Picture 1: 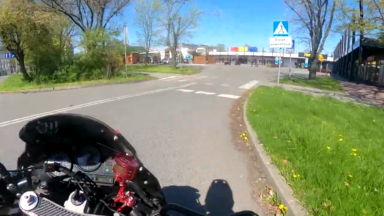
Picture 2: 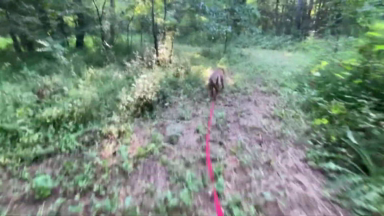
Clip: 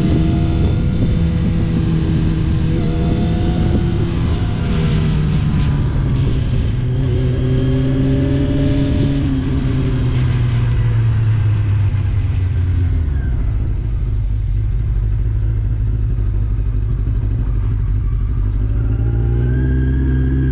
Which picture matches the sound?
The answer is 1